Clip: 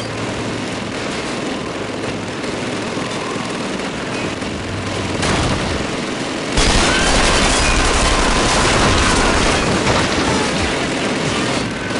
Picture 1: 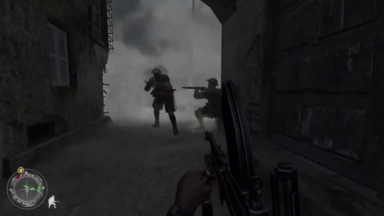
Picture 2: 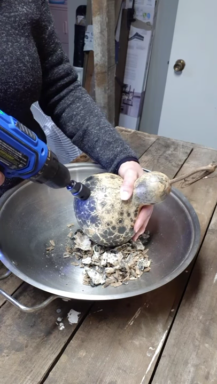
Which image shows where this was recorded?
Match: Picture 1